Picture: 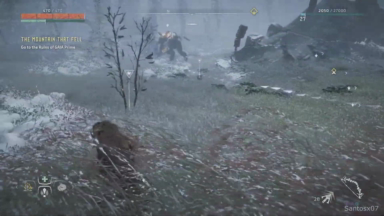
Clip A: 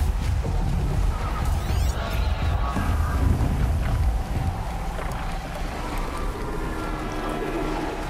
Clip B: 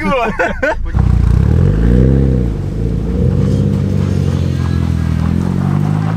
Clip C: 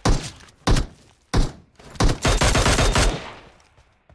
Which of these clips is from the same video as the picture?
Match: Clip A